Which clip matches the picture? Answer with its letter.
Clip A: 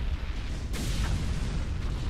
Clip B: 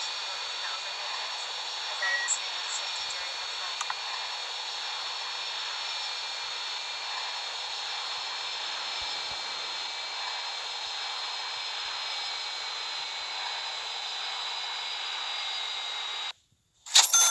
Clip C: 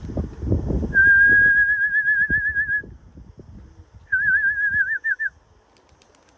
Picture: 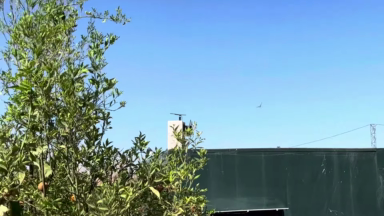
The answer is C